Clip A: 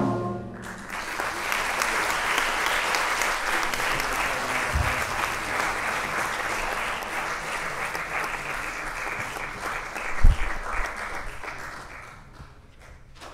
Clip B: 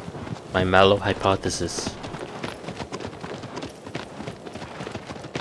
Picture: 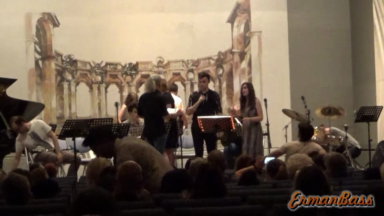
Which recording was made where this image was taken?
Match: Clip A